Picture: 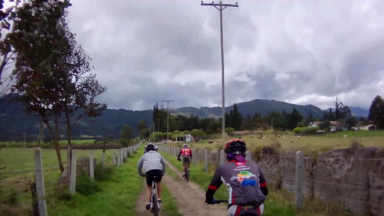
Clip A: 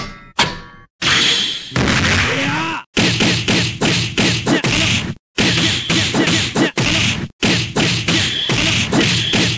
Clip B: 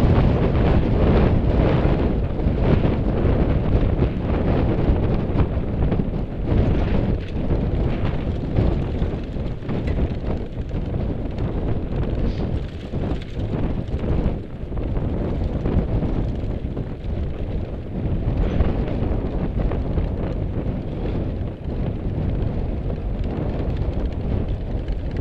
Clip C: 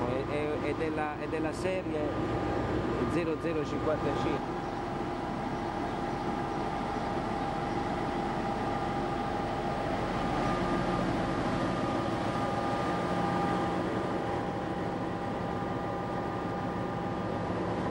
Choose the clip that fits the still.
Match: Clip B